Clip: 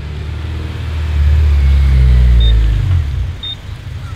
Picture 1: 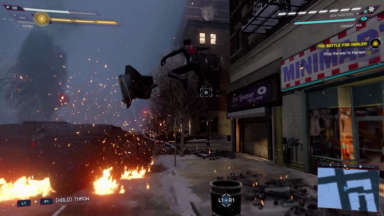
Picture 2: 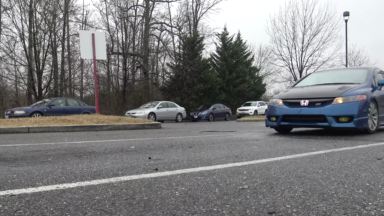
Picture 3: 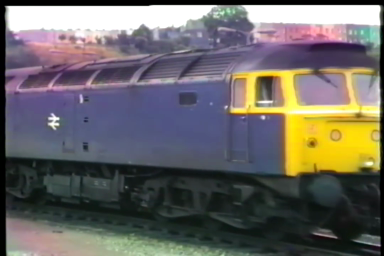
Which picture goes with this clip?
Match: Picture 2